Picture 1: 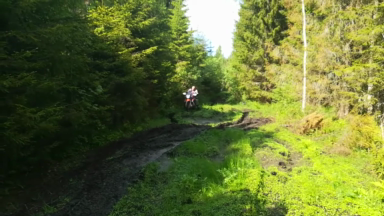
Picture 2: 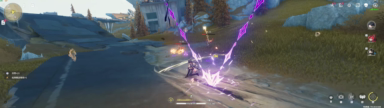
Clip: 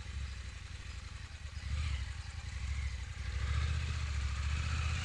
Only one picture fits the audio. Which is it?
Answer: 1